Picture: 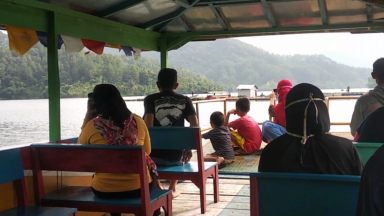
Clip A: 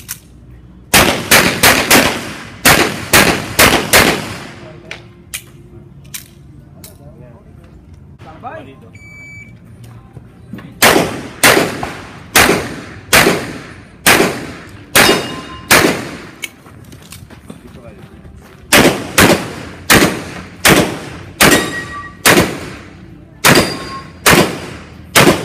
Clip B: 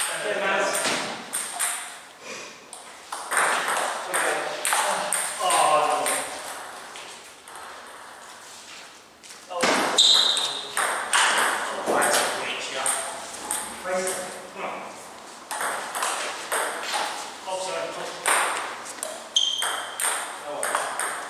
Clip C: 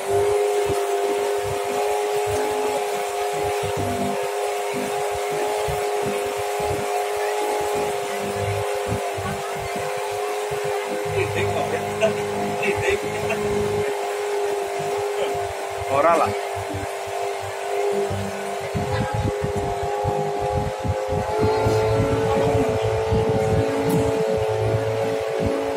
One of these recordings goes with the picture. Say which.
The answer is C